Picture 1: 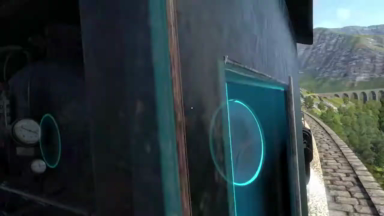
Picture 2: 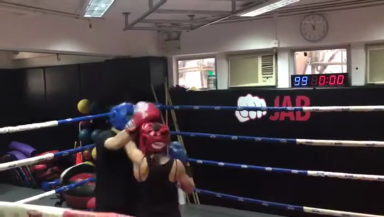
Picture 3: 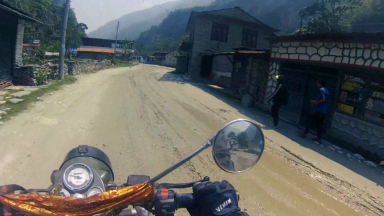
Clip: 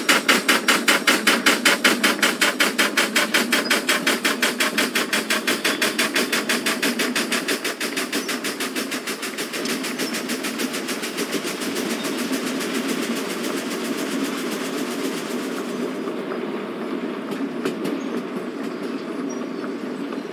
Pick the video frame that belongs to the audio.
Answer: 1